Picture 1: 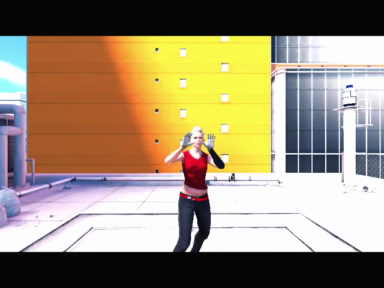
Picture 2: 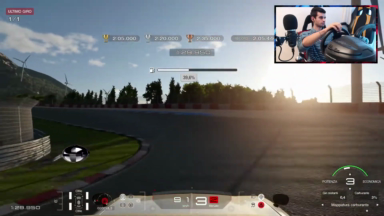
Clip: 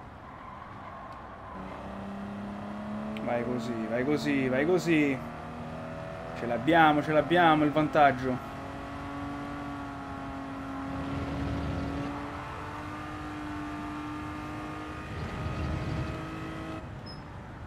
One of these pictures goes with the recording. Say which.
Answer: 2